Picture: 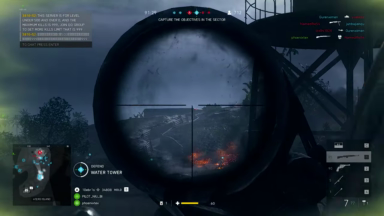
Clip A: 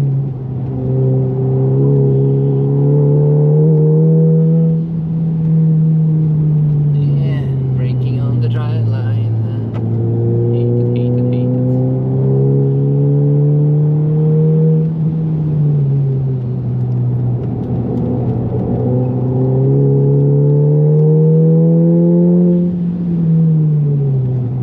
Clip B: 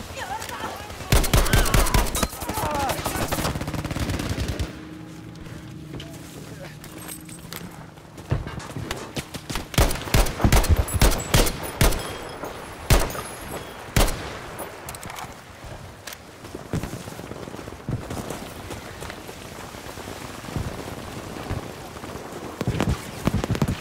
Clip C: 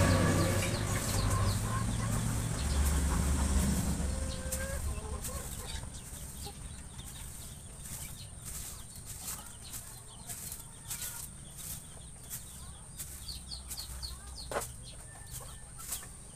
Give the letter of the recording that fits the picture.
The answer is B